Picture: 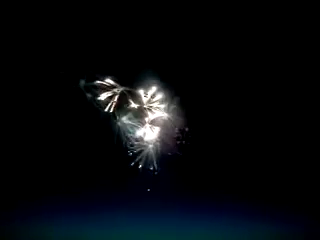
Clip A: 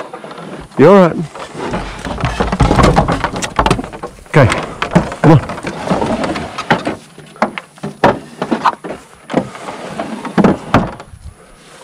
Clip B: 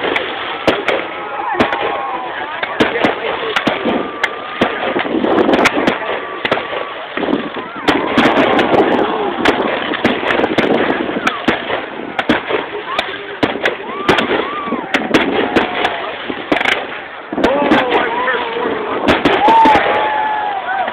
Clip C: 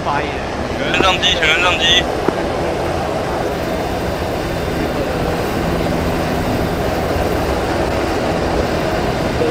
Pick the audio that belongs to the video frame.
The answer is B